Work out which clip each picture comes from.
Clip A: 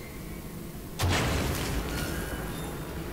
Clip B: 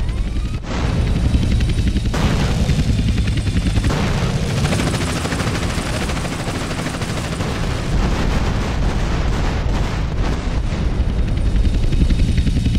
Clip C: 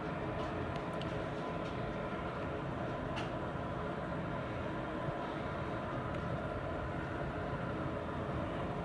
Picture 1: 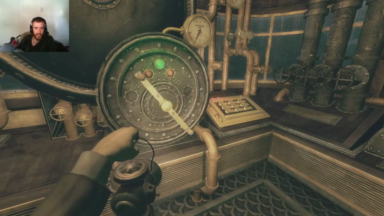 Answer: A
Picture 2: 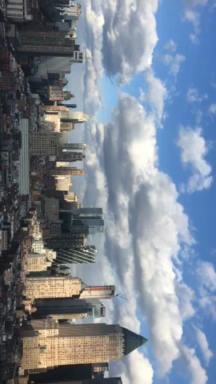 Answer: C